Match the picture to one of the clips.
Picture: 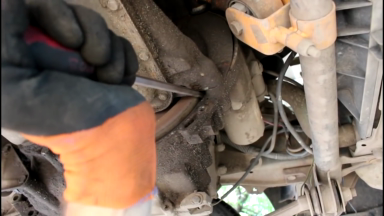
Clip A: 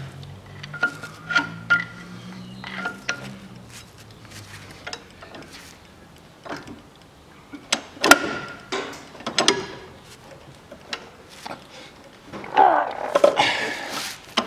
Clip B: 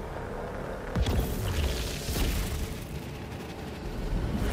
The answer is A